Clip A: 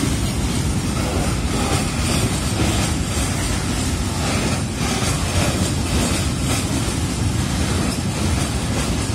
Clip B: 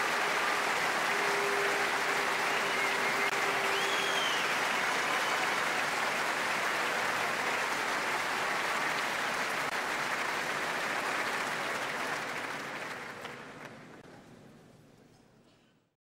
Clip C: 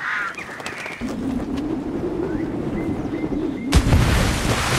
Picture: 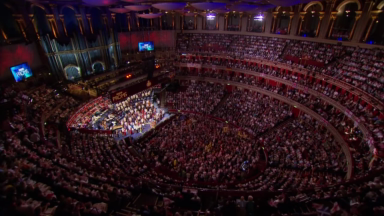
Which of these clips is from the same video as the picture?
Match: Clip B